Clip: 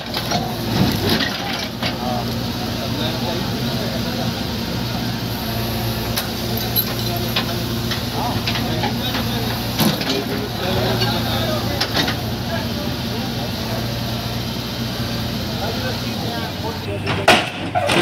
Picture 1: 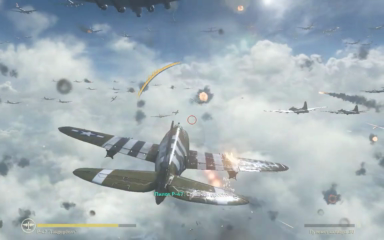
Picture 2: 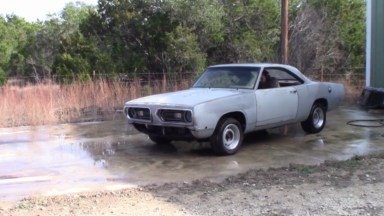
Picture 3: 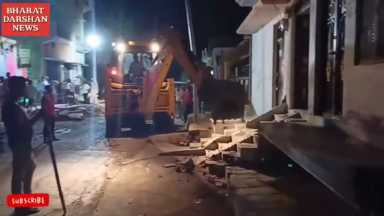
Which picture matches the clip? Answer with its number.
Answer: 3